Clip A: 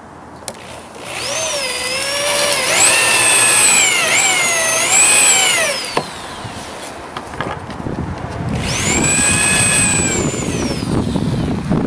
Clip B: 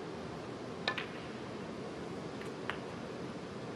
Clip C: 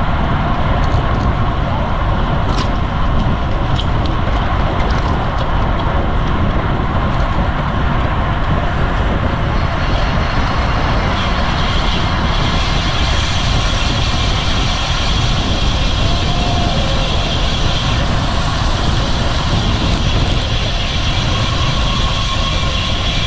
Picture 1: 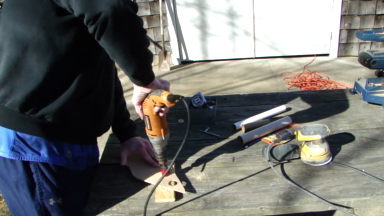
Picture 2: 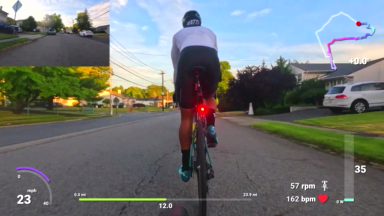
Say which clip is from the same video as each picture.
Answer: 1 A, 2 C